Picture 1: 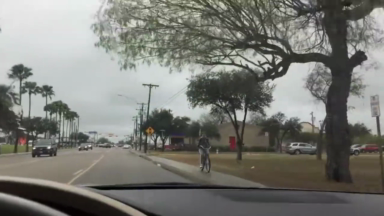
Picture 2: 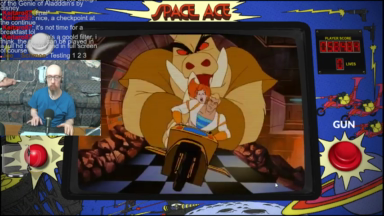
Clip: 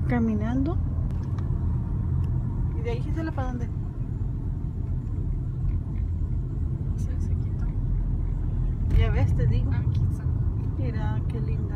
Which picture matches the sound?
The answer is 1